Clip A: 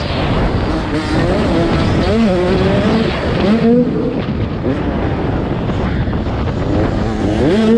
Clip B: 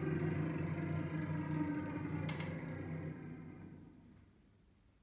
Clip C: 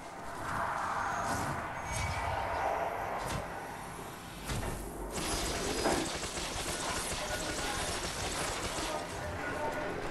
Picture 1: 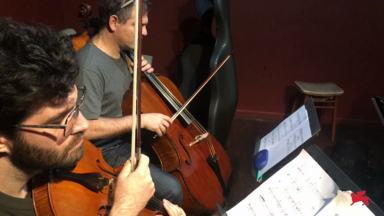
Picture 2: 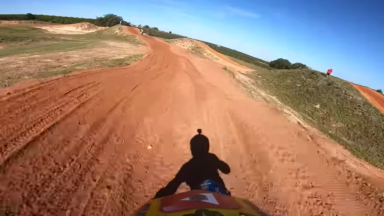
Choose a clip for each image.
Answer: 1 B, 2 A